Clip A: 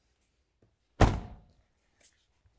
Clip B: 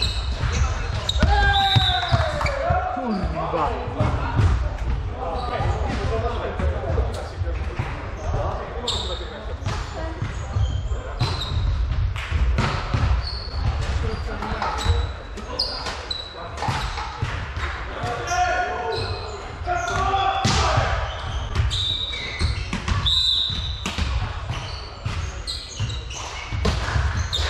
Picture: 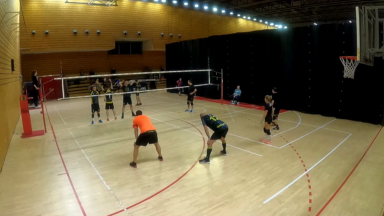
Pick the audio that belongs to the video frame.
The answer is B